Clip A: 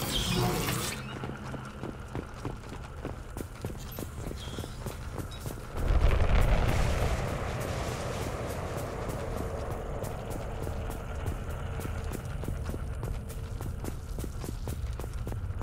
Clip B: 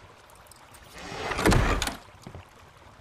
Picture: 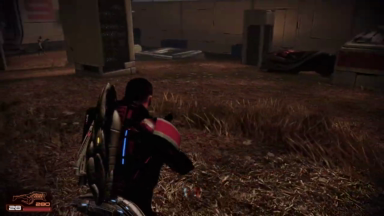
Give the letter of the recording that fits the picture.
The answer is A